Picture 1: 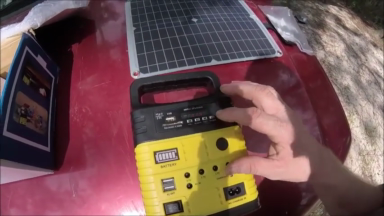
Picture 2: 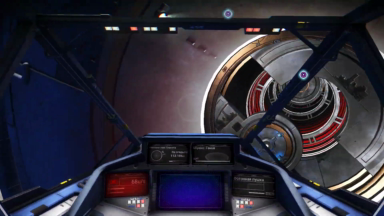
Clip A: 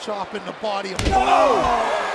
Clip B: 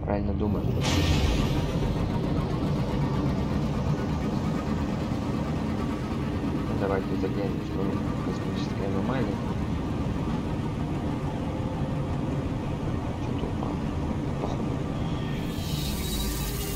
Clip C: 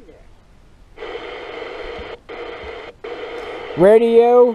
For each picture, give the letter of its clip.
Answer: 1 C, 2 B